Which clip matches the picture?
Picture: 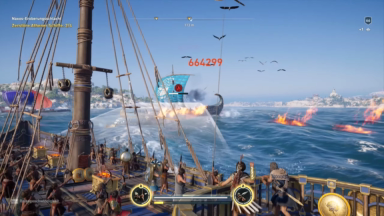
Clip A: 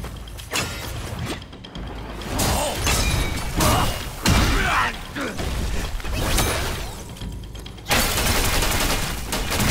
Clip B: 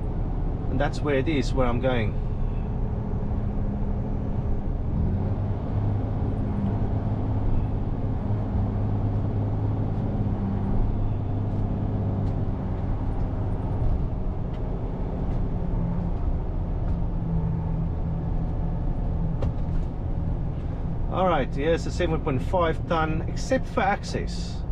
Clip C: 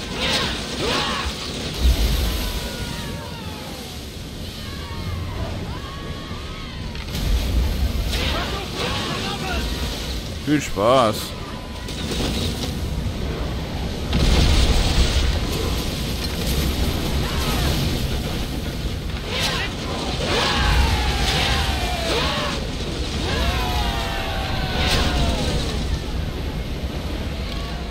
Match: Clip C